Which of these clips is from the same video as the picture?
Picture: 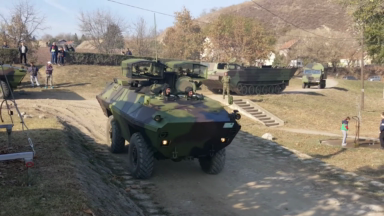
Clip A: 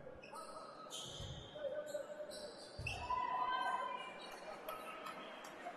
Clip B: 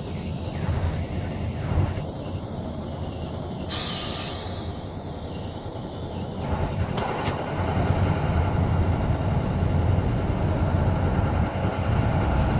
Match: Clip B